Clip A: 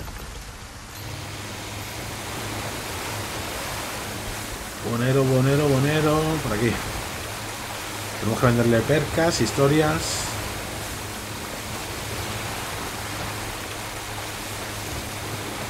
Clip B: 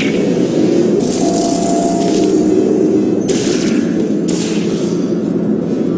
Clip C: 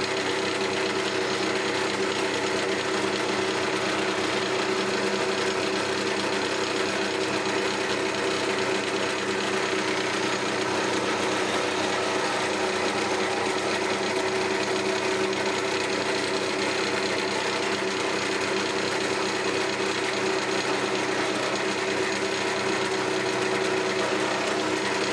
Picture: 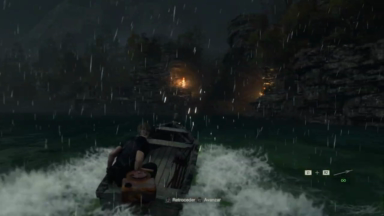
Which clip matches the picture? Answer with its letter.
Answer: A